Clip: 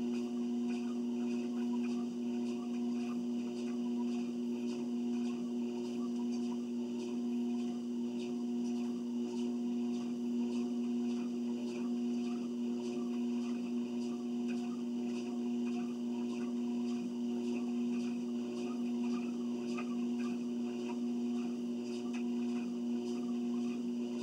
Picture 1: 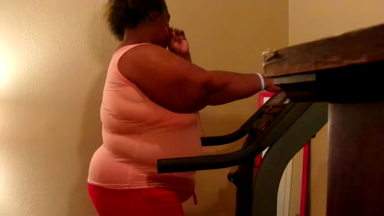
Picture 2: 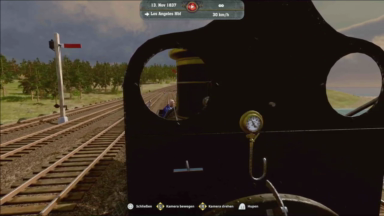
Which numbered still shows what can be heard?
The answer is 1